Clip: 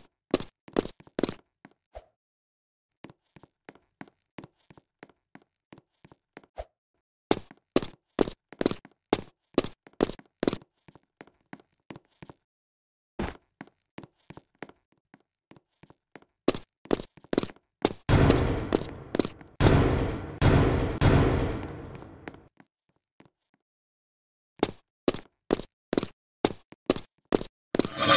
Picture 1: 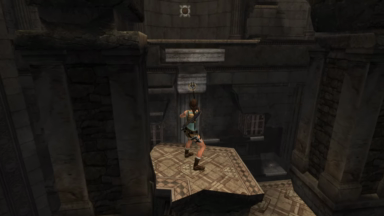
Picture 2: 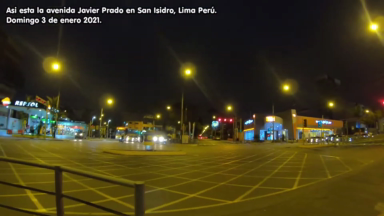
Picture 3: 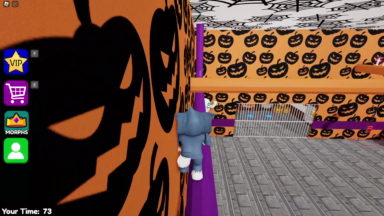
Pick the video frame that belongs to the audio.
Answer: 3